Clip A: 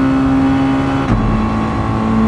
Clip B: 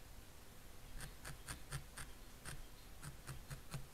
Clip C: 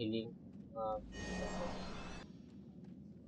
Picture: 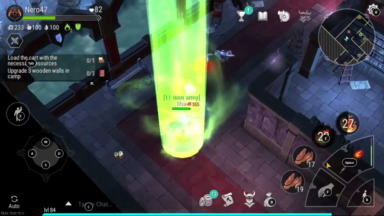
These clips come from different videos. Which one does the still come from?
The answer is C